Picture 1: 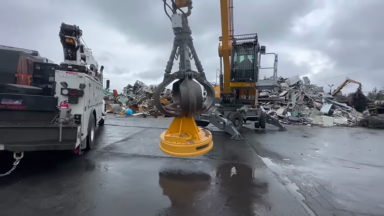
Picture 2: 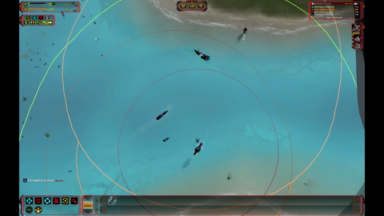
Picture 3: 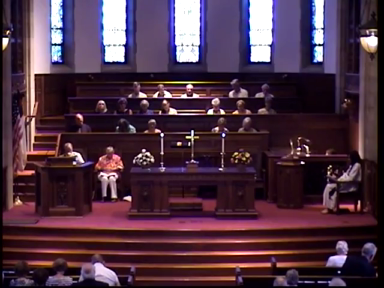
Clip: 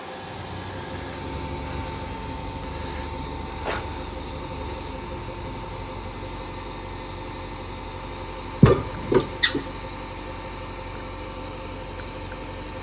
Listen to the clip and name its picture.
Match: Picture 1